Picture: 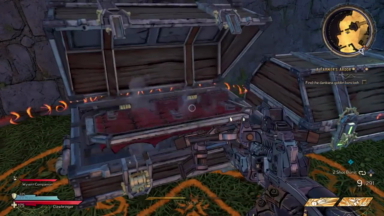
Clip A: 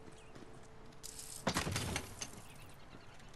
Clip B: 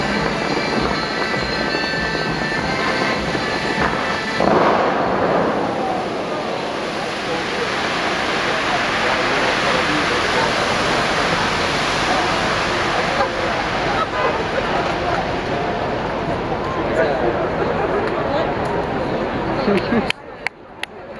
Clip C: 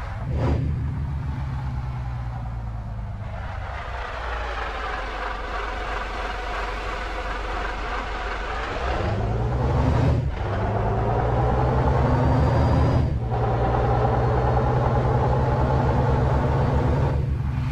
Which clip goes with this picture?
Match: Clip A